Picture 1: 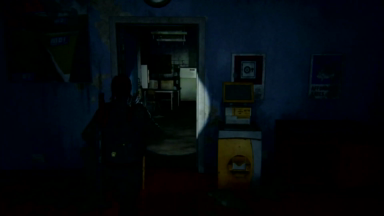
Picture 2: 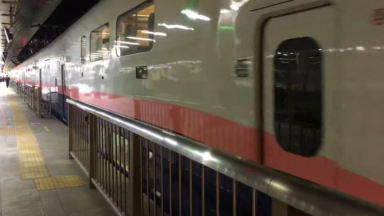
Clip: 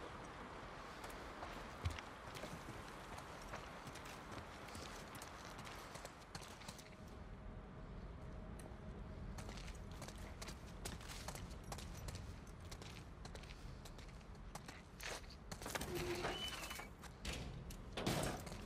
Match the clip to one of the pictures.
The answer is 1